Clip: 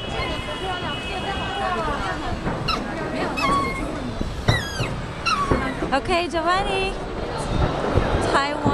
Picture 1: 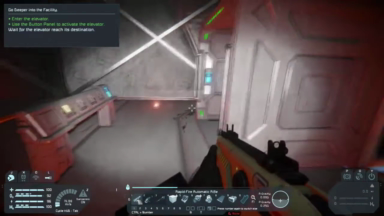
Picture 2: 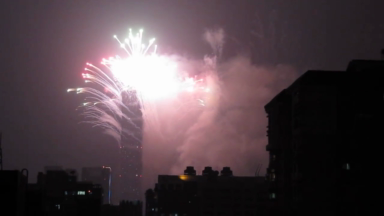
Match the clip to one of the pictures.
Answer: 2